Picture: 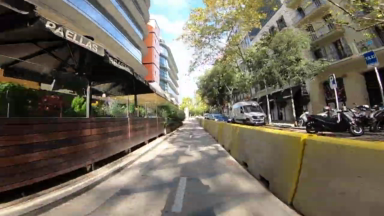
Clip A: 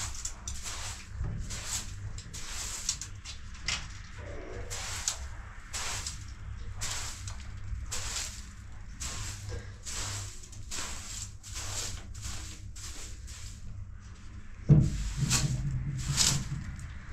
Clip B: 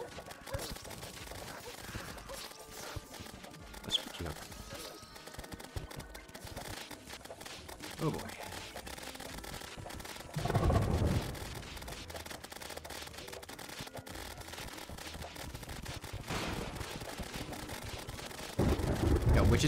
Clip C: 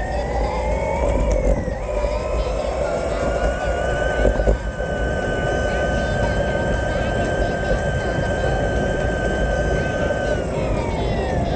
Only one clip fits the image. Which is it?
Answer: C